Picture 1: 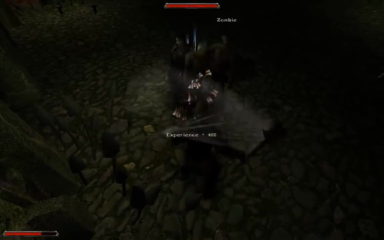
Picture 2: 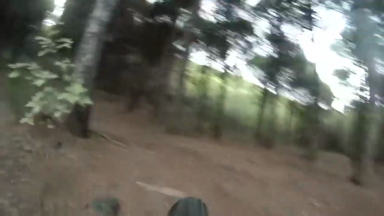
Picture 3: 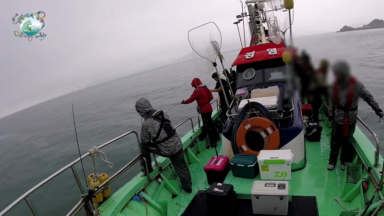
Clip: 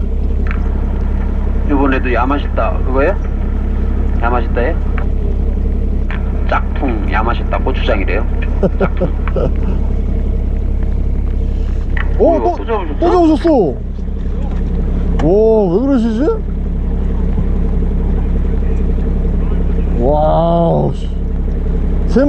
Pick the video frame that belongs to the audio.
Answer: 3